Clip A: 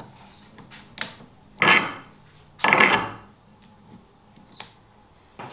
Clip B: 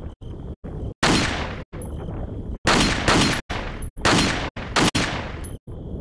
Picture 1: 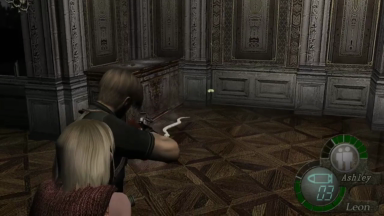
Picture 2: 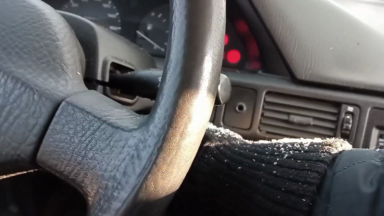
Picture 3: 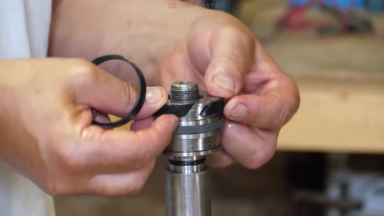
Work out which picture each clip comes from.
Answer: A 3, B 1